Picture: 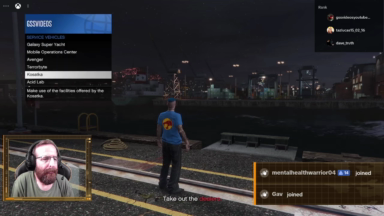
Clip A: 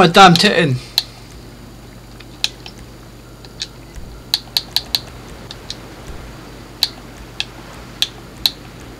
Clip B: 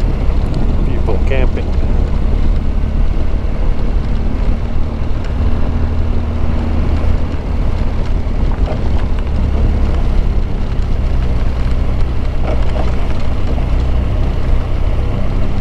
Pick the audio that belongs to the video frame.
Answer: A